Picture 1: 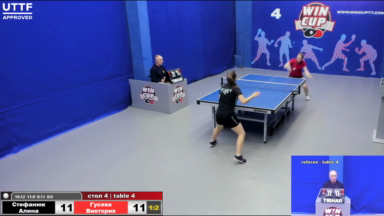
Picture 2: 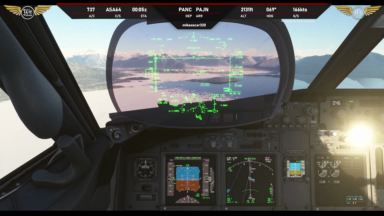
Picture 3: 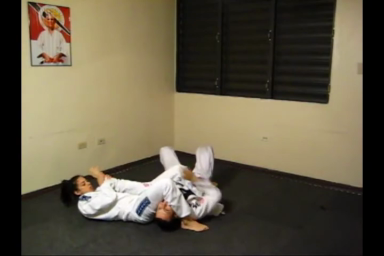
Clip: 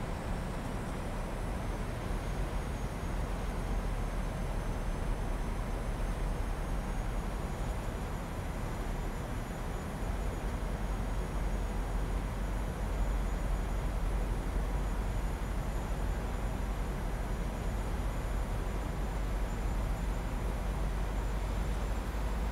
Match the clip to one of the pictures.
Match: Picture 2